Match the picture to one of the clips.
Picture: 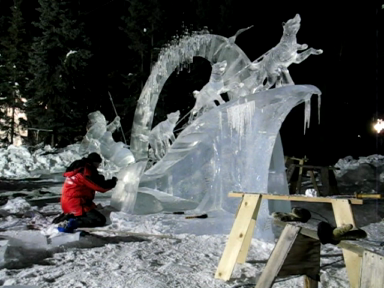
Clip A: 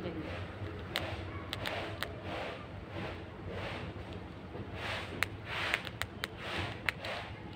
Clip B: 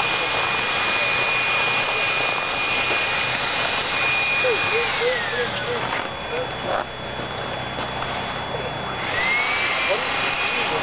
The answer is B